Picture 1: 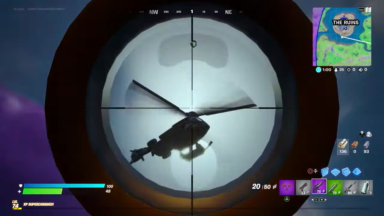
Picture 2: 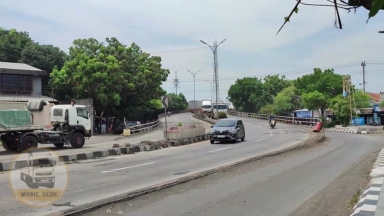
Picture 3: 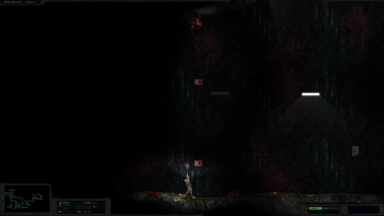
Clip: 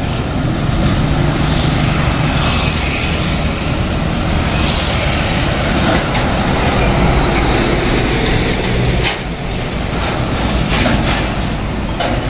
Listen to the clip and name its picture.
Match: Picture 2